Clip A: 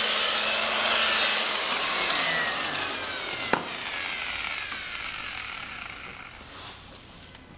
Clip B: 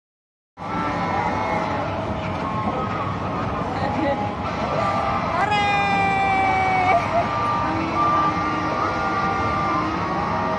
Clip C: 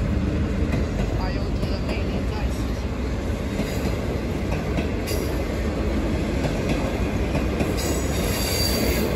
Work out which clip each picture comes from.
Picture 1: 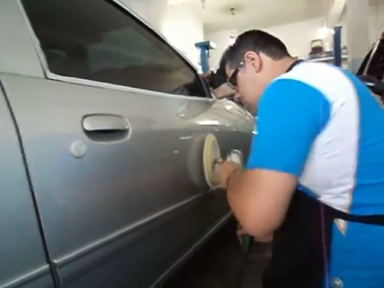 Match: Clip A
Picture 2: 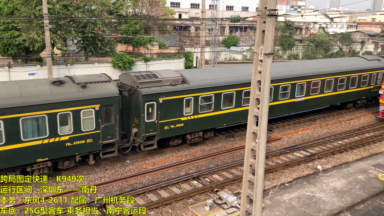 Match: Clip C